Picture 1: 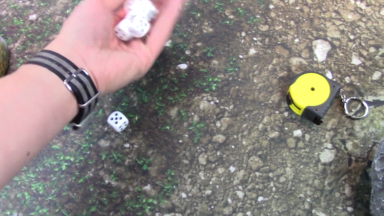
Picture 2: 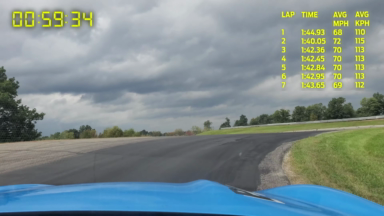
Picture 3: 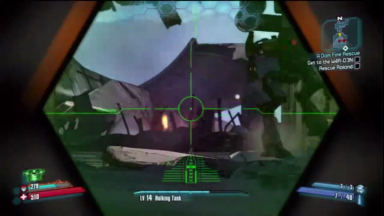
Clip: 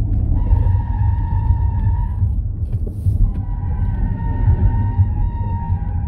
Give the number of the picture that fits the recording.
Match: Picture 2